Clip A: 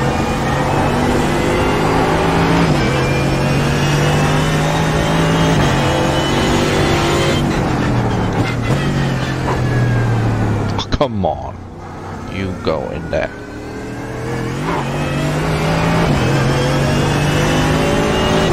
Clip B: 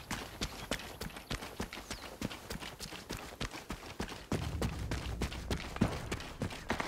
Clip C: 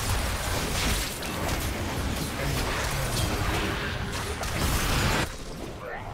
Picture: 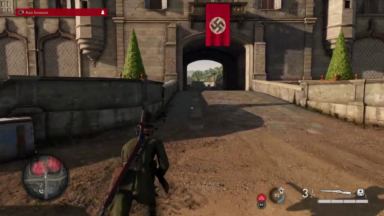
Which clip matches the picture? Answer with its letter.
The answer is B